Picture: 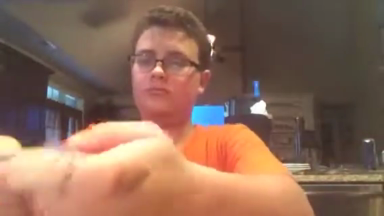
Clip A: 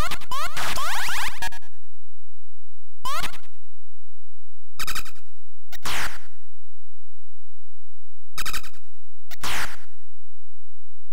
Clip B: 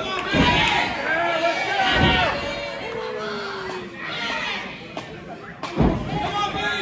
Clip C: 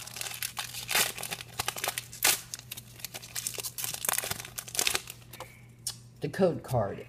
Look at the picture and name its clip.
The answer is C